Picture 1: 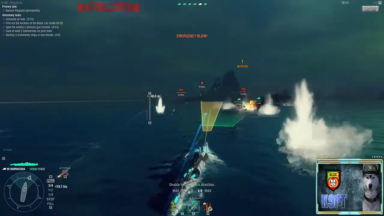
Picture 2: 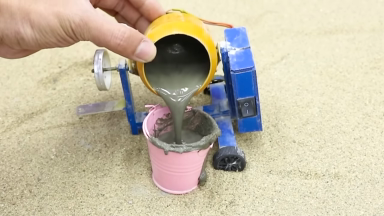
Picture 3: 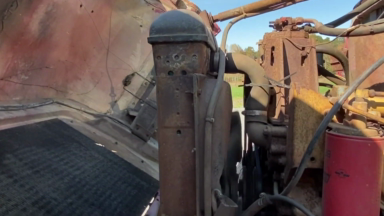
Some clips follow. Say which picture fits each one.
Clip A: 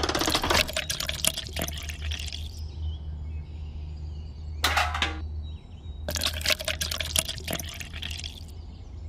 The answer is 2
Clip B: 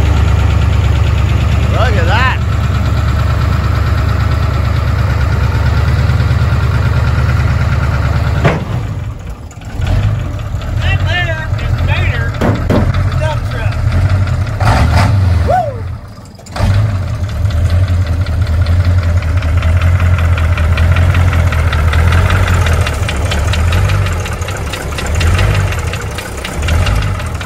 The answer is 3